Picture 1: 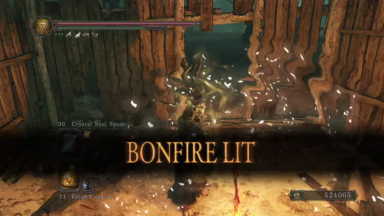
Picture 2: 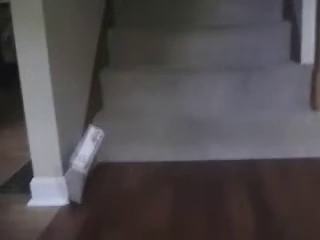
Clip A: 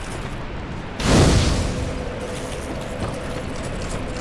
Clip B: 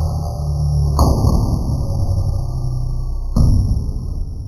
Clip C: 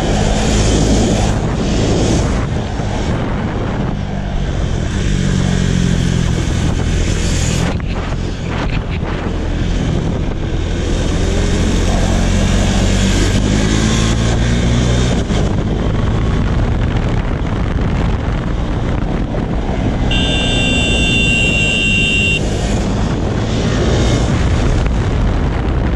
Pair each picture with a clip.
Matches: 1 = A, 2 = B